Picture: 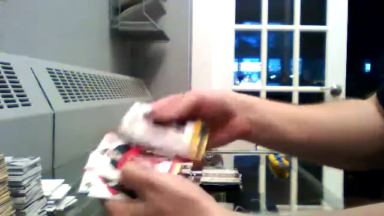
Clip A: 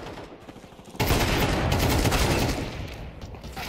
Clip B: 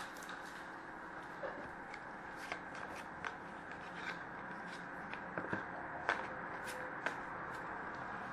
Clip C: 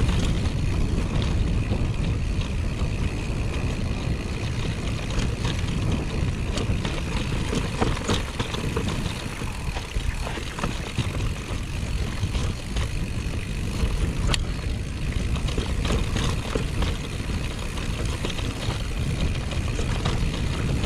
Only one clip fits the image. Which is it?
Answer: B